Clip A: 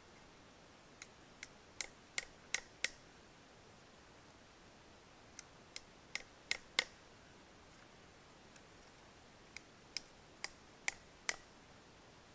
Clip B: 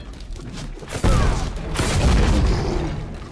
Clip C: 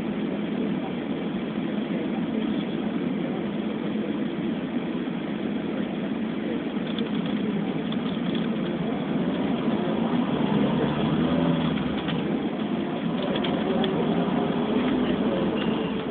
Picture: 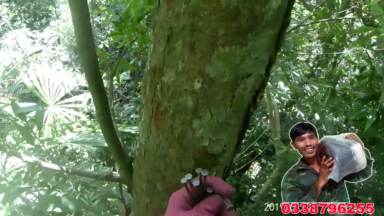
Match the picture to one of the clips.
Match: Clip A